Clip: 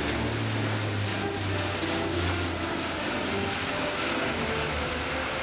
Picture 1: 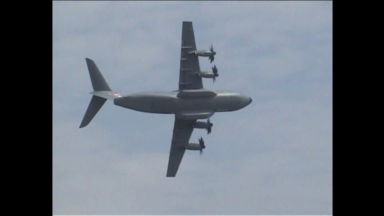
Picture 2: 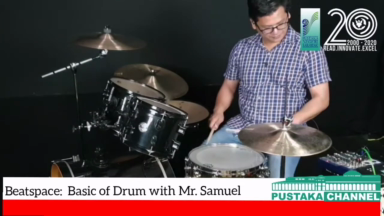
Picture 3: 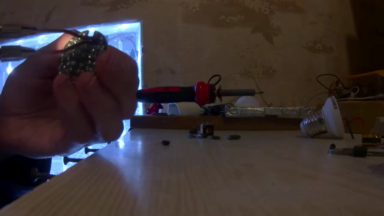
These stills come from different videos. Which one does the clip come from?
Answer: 1